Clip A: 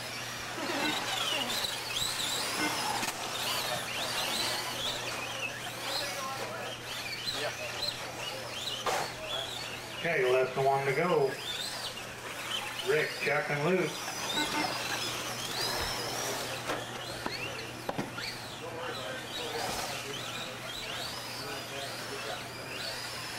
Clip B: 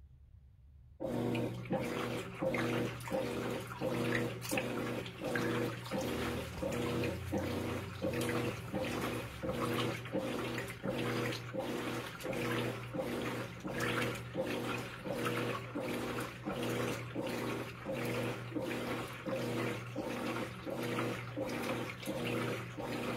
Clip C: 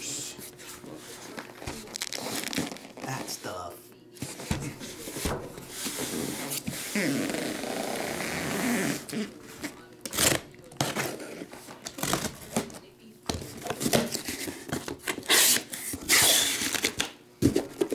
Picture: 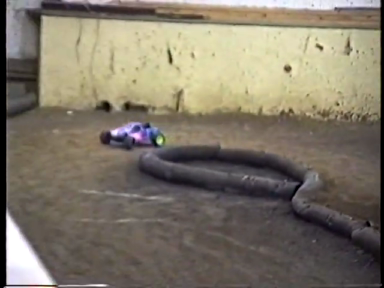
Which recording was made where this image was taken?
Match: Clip A